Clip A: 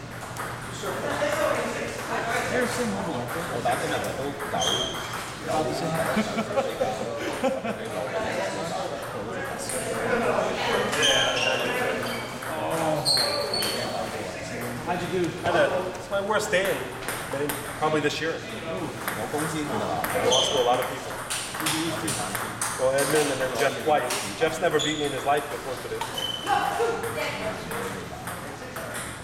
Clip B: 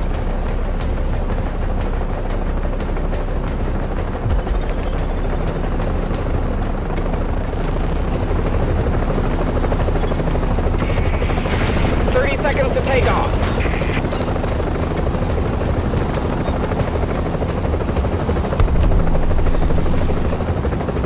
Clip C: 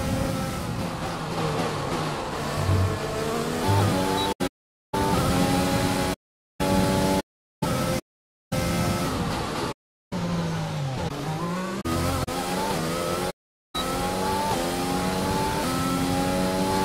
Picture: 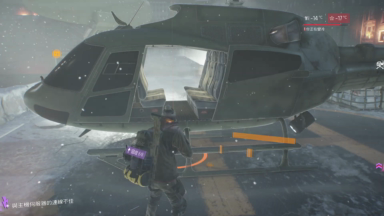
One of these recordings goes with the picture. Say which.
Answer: B